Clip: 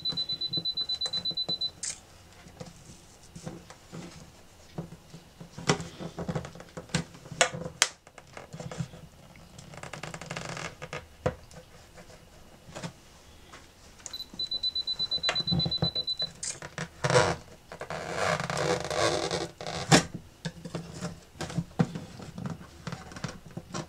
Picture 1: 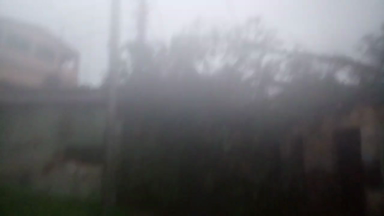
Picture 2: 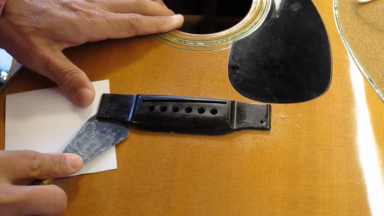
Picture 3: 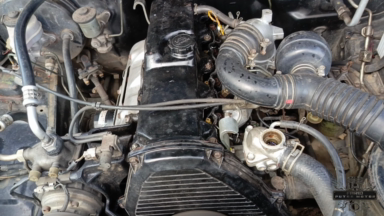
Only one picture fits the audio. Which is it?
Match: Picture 2